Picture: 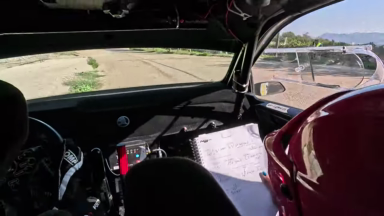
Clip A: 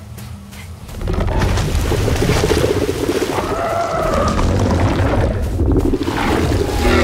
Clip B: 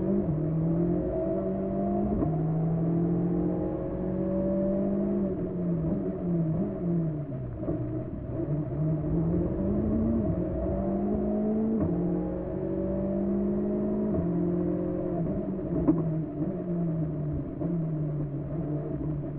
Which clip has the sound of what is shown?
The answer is B